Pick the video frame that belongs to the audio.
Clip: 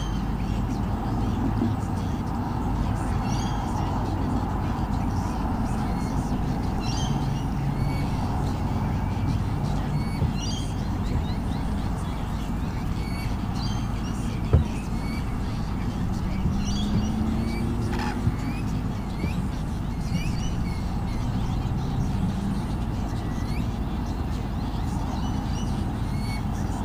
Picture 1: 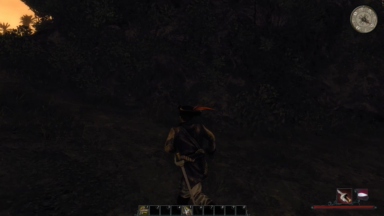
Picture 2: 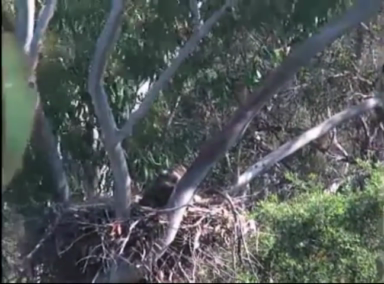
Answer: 2